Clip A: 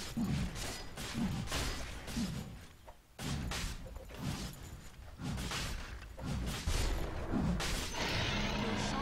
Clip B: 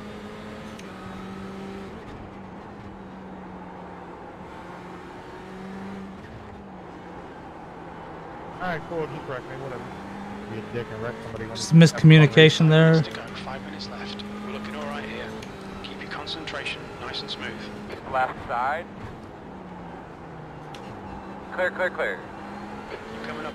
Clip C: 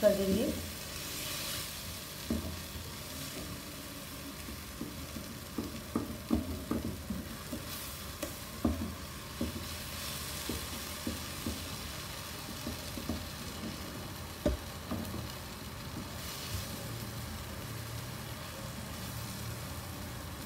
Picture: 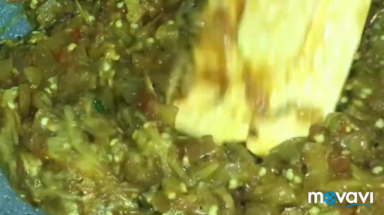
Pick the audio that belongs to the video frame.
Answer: C